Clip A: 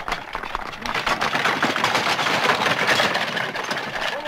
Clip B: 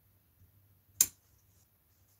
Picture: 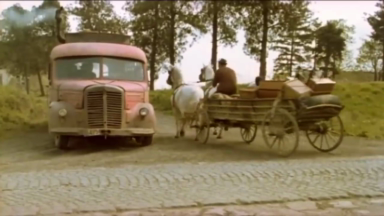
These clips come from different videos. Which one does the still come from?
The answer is A